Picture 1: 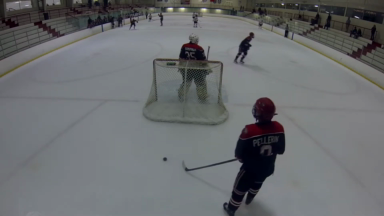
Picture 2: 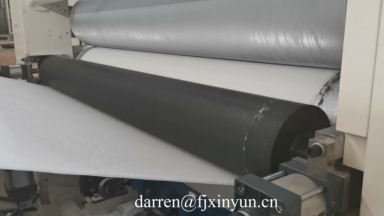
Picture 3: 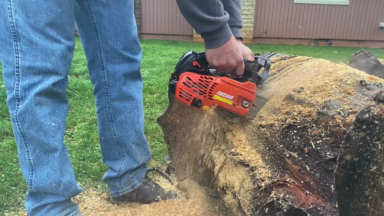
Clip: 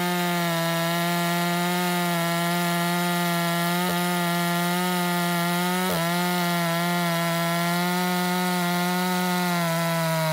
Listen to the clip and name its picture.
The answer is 3